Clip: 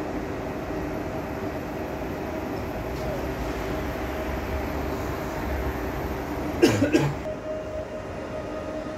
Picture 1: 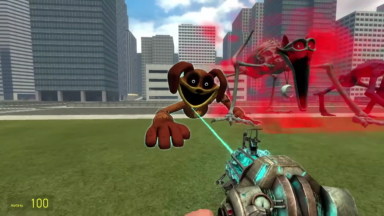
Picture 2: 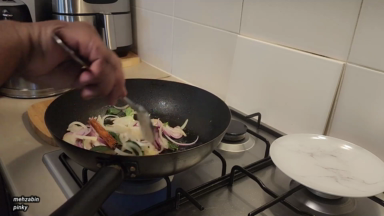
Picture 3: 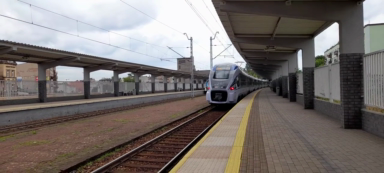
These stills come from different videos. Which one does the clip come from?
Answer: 3